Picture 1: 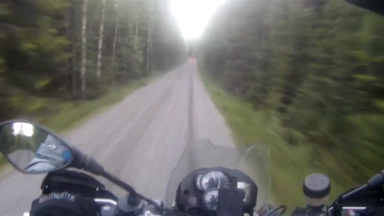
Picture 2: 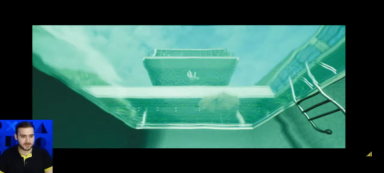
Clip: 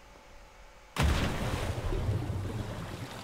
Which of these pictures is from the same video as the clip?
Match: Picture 2